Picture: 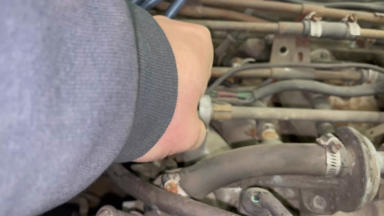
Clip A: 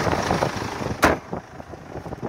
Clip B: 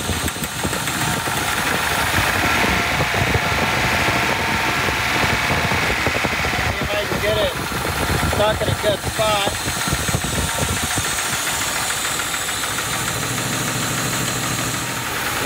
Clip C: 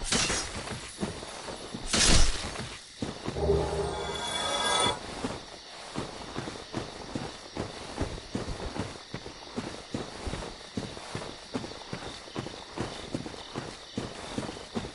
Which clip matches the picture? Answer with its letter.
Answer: B